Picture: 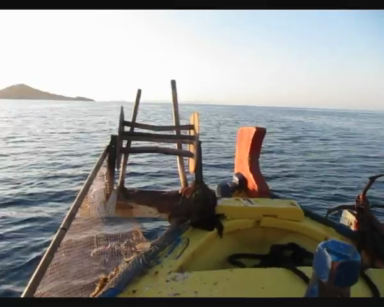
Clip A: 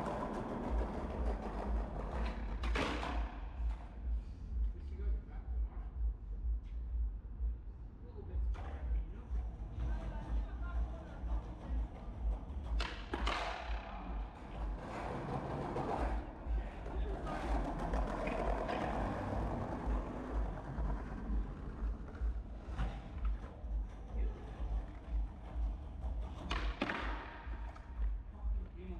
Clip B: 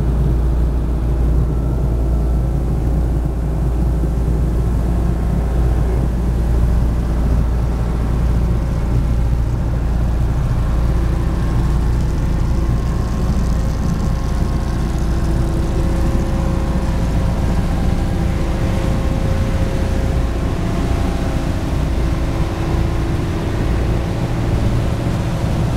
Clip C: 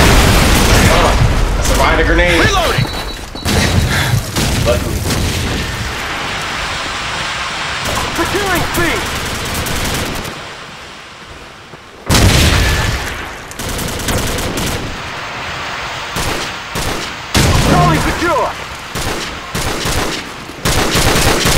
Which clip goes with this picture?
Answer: B